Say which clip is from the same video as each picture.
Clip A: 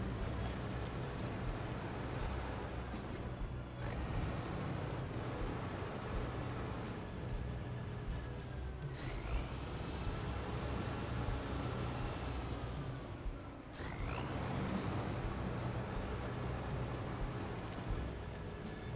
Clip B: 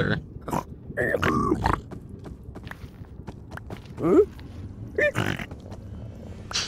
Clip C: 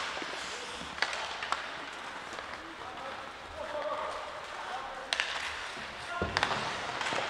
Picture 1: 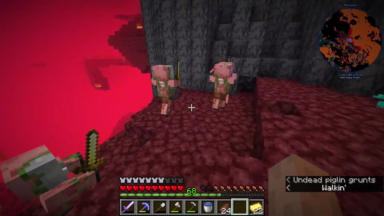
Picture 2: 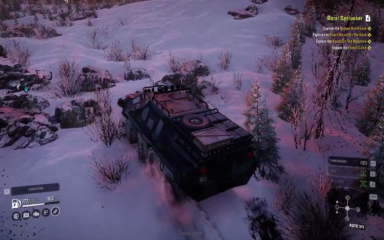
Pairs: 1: B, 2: A